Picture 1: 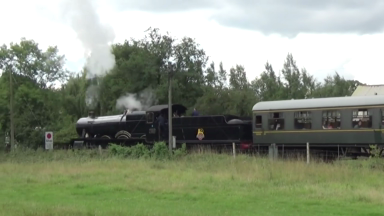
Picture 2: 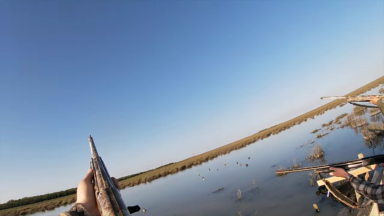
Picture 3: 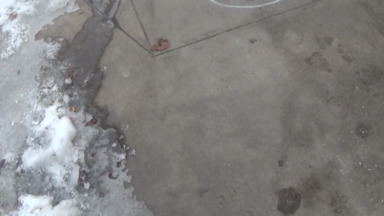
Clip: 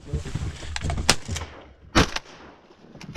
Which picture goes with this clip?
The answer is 2